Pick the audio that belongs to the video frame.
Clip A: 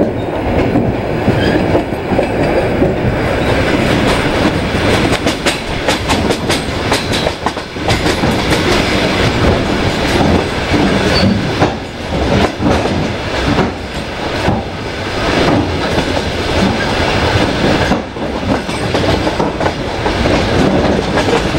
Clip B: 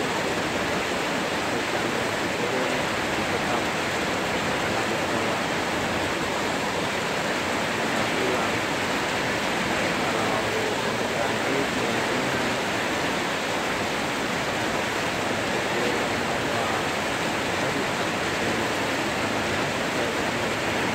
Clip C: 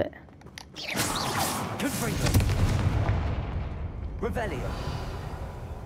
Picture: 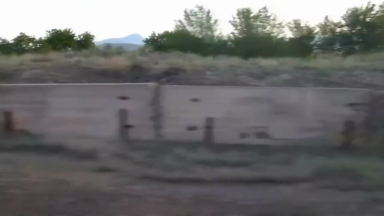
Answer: A